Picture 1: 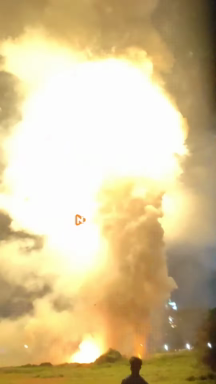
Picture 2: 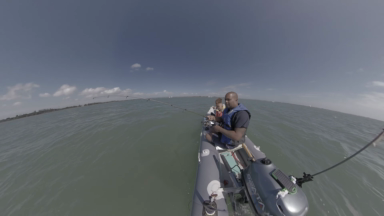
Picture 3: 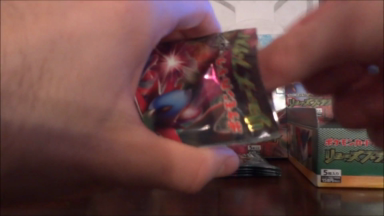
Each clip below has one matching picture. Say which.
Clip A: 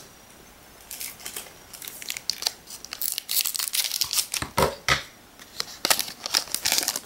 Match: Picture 3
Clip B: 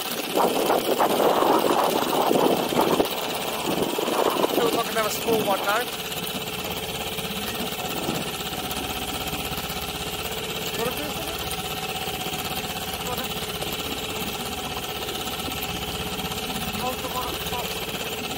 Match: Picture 2